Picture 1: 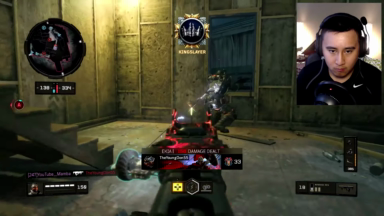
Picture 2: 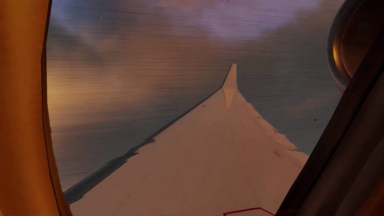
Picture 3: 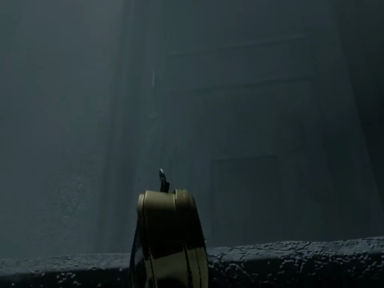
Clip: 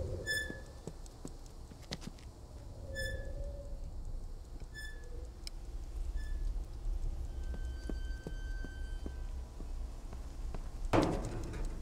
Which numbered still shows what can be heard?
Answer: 3